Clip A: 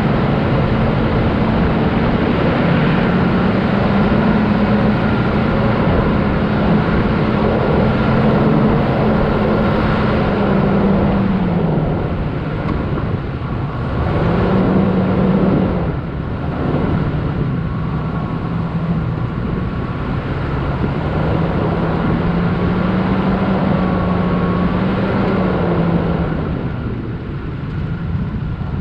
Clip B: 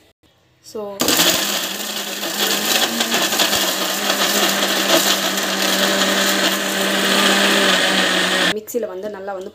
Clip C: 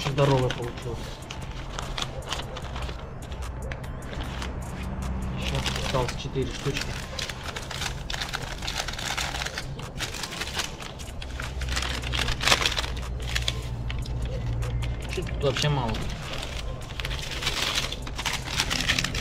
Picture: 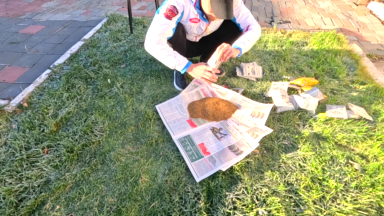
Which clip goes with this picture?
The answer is C